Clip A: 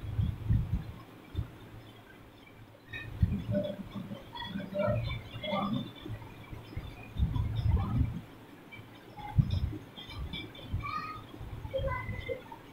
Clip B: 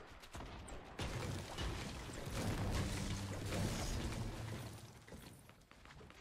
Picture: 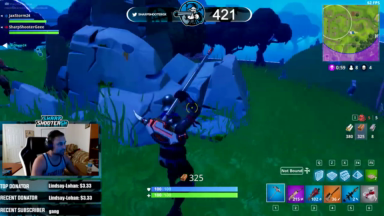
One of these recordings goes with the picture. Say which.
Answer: B